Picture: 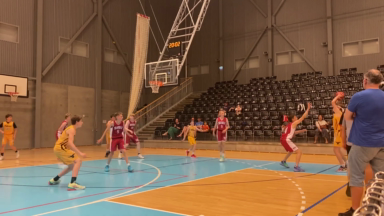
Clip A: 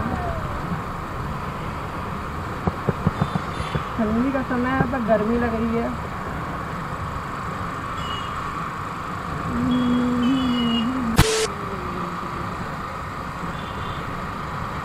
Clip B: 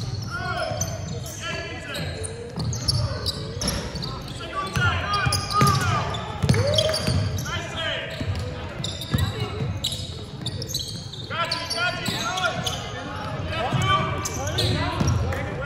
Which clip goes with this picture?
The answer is B